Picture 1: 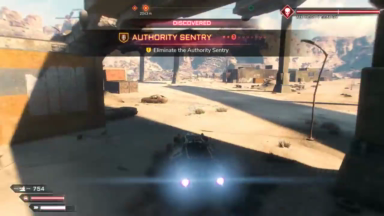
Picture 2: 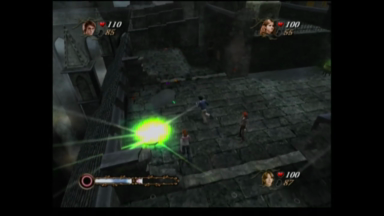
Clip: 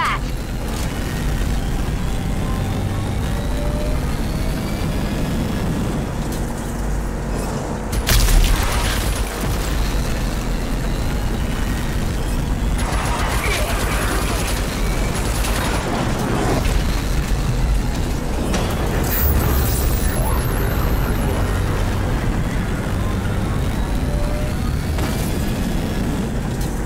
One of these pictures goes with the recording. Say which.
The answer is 1